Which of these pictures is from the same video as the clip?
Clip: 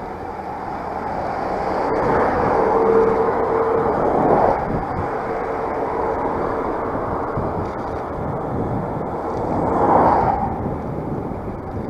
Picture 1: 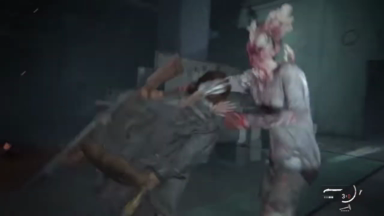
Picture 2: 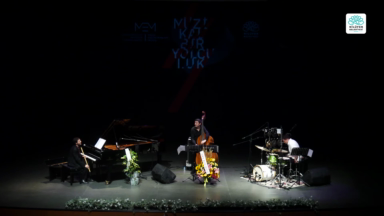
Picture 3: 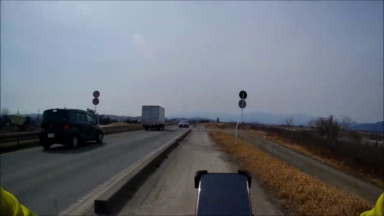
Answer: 3